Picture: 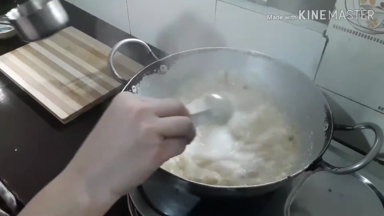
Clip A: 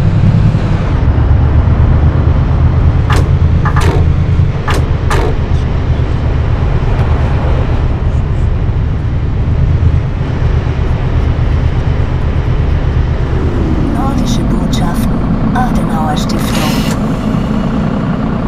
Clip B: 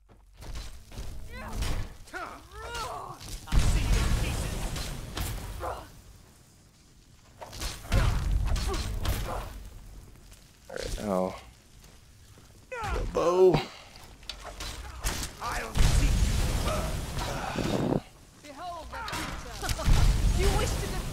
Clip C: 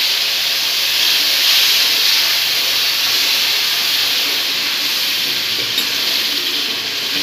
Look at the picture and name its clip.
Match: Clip C